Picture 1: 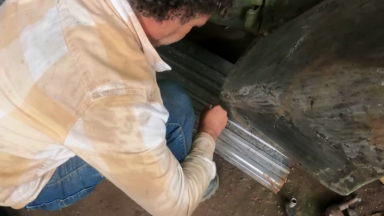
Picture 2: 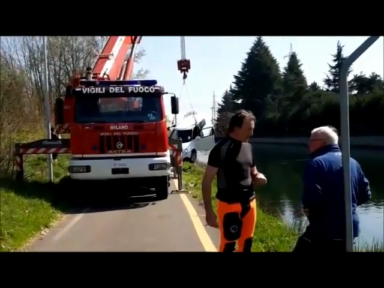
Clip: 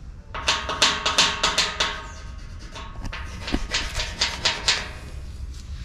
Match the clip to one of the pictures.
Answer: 1